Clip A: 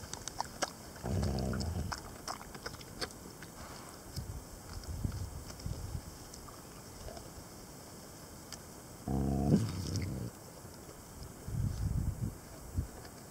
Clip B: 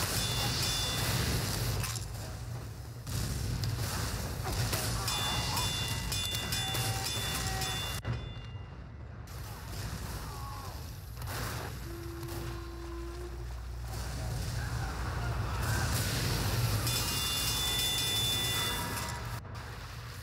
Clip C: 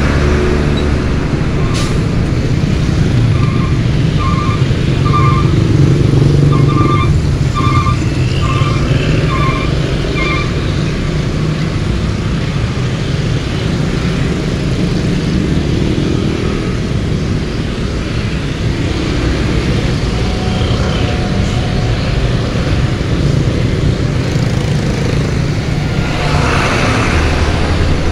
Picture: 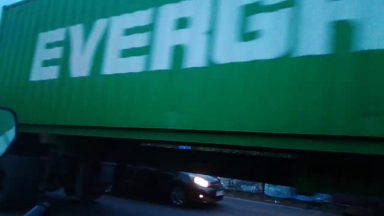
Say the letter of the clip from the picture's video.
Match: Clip C